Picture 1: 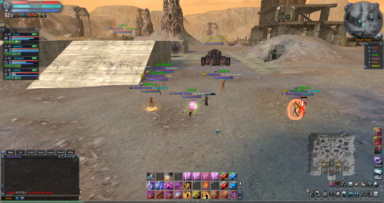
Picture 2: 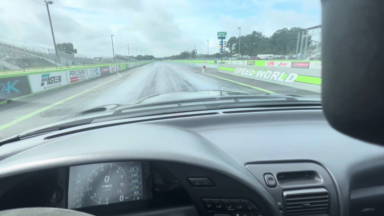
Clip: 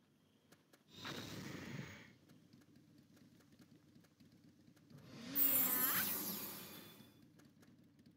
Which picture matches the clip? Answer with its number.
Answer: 1